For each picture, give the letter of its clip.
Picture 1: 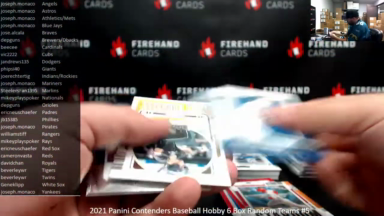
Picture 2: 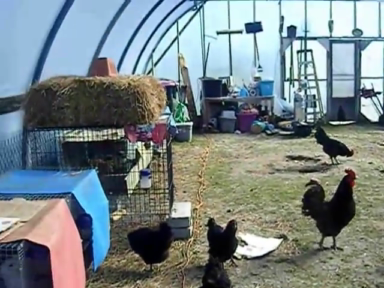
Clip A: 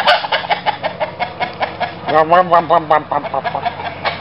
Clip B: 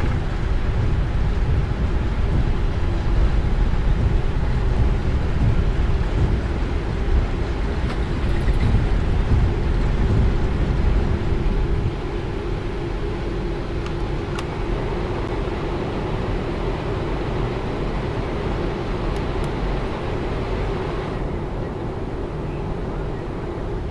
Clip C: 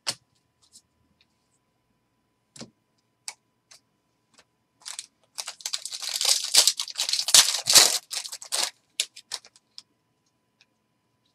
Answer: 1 C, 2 A